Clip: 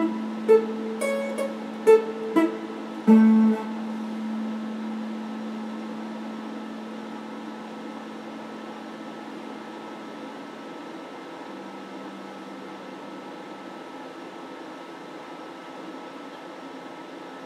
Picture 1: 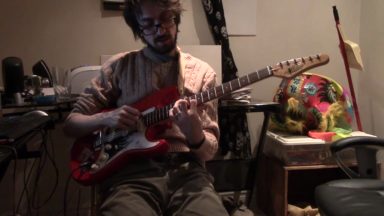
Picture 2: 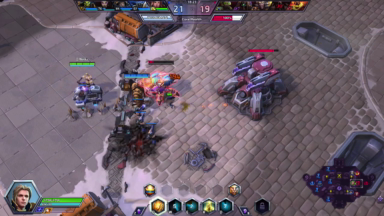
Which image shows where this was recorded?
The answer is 1